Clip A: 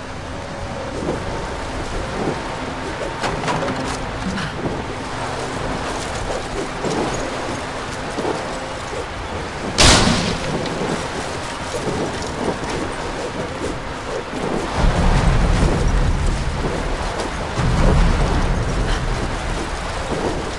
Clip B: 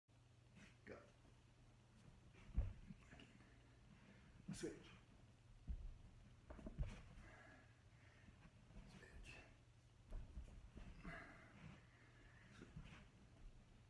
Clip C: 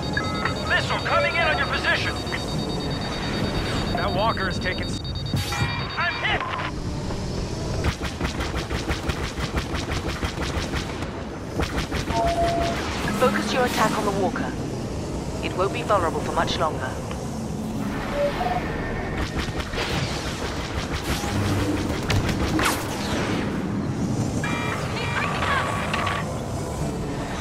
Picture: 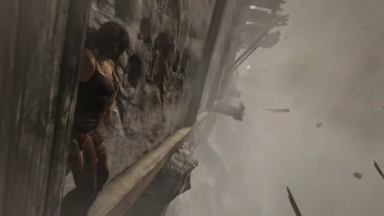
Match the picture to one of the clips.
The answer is A